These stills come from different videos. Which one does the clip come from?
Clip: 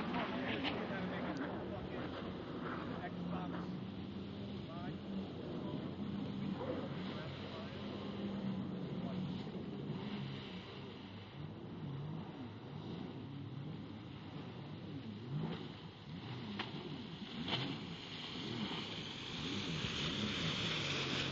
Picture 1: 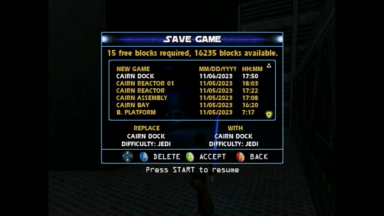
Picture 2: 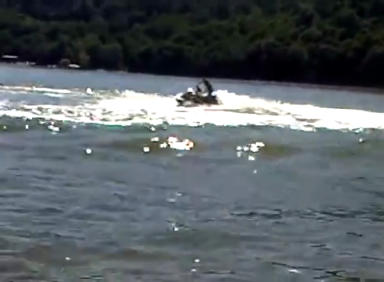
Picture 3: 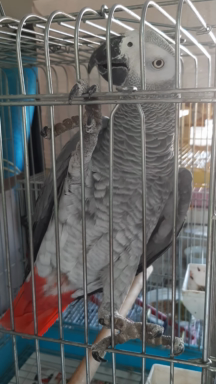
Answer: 2